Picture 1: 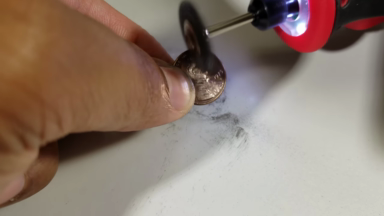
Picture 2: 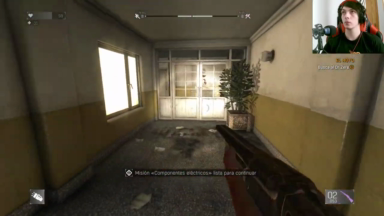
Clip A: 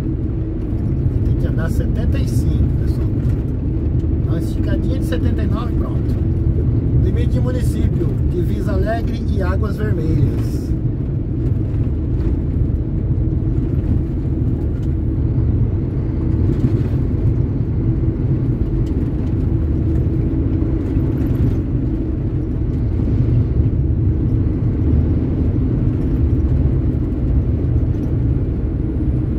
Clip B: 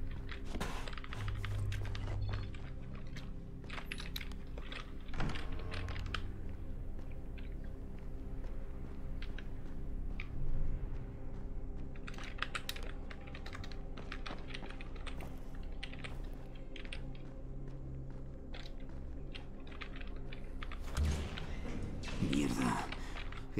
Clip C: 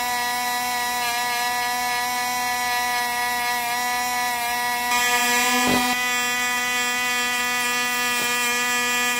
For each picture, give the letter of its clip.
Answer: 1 C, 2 B